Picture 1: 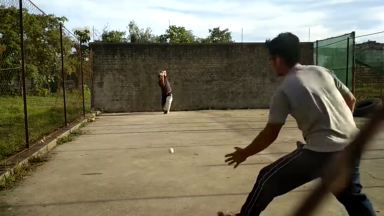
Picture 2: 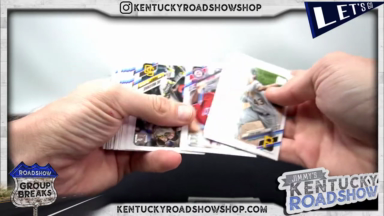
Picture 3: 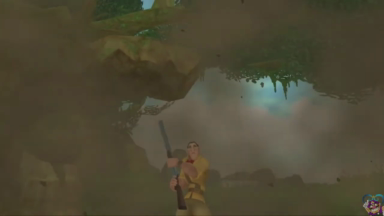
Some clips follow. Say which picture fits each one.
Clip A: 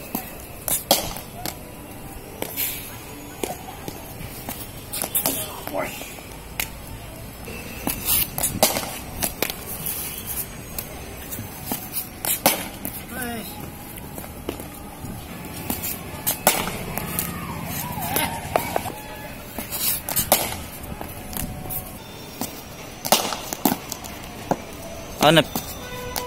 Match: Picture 1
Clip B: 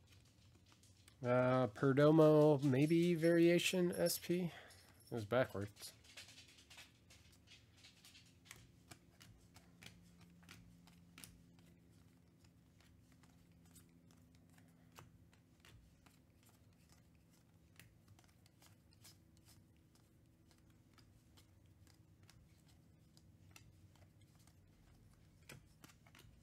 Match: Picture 2